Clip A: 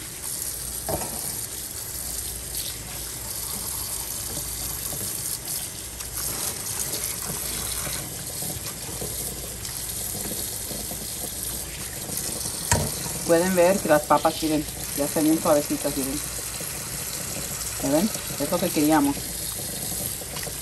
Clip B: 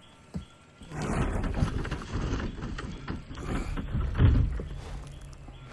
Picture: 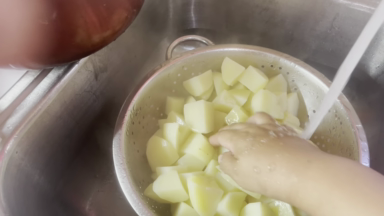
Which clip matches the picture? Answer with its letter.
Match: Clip A